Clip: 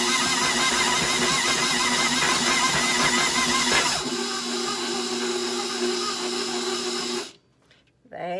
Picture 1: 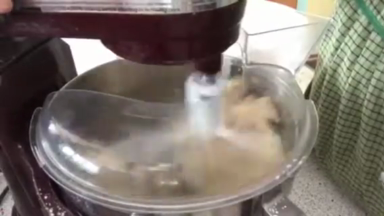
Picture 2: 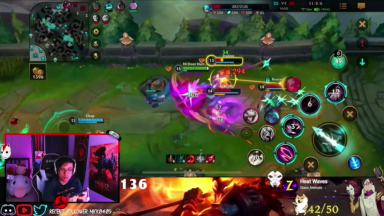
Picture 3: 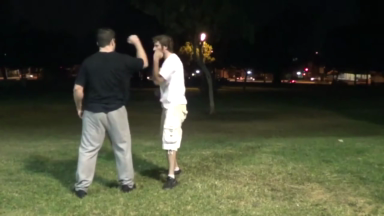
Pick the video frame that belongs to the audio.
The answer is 1